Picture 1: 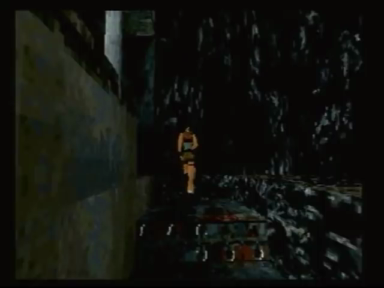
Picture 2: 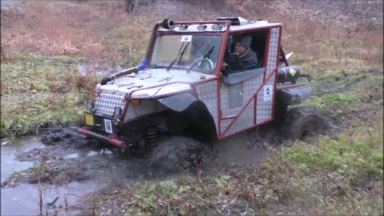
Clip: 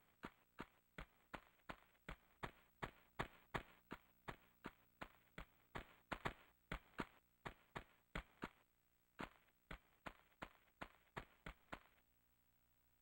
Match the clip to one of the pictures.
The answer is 1